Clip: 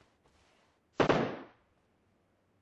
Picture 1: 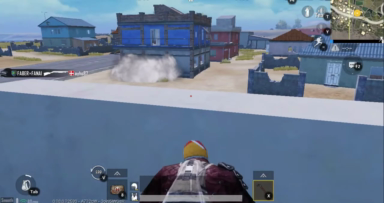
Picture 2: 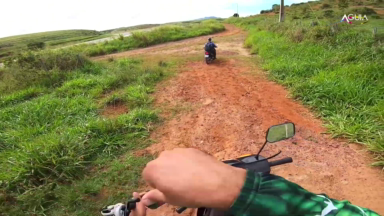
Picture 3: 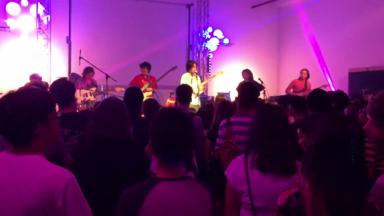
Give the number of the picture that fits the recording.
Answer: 1